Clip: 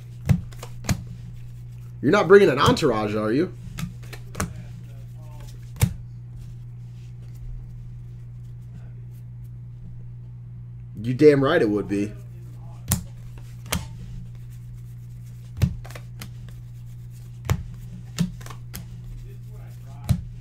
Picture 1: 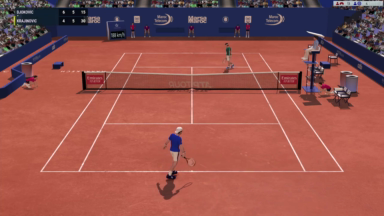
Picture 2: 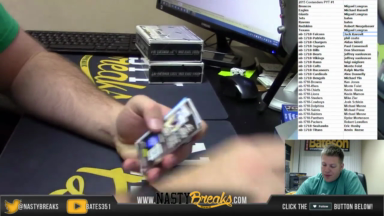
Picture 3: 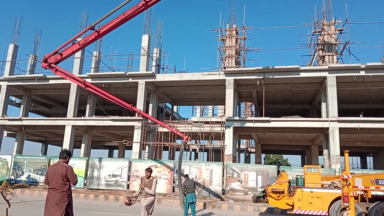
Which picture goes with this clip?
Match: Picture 2